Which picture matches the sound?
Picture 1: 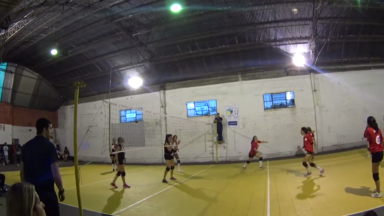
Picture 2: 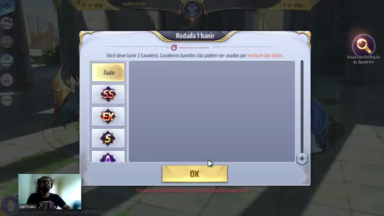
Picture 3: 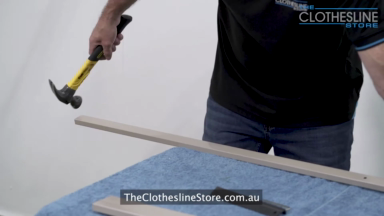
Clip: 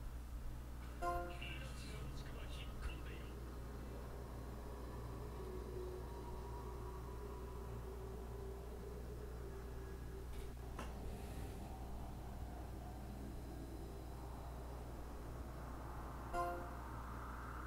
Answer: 2